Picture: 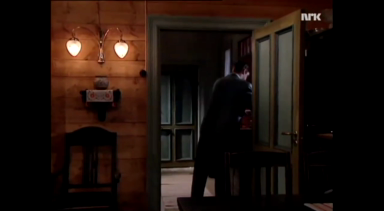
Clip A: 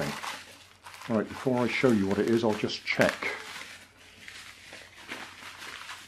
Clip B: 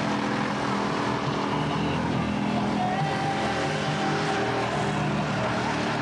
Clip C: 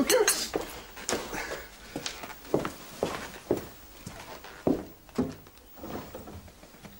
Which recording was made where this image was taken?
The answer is C